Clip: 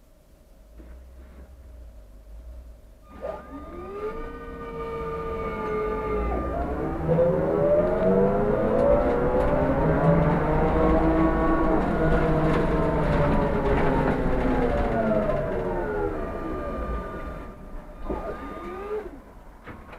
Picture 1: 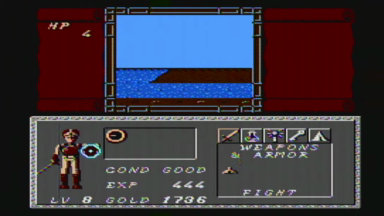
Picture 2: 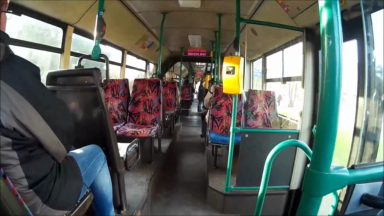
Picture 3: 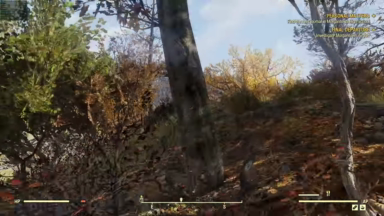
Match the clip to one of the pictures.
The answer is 2